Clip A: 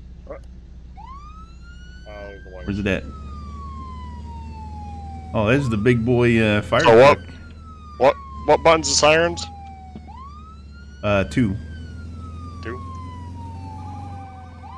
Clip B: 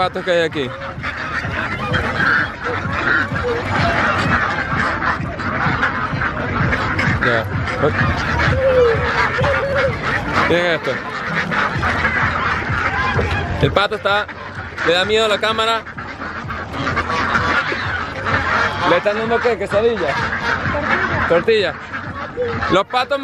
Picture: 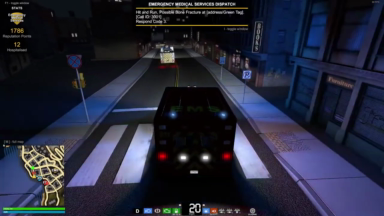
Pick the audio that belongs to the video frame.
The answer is A